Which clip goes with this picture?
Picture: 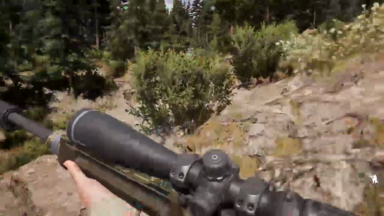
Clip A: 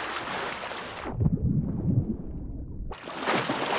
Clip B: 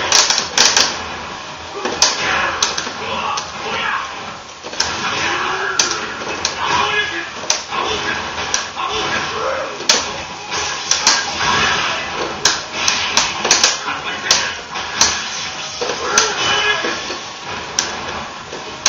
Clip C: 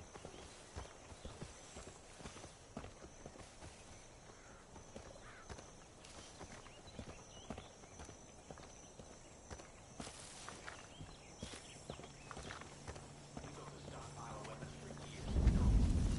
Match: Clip C